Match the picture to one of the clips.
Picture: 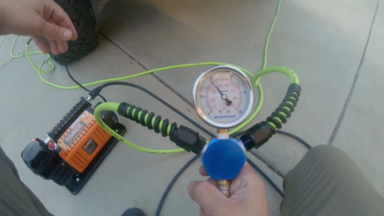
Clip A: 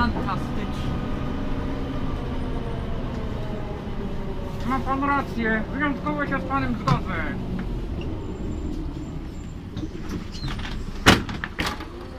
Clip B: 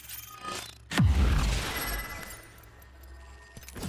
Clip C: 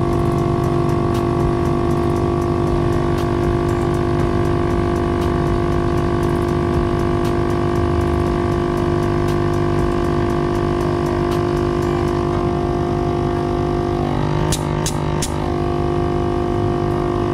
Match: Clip C